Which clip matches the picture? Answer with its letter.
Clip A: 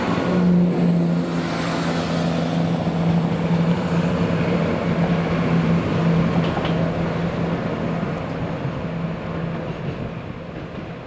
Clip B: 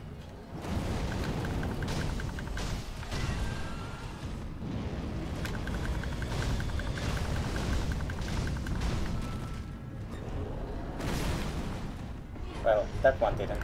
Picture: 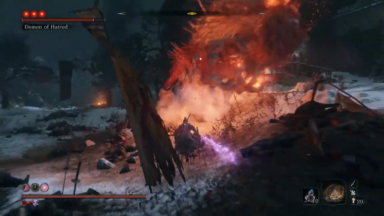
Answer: B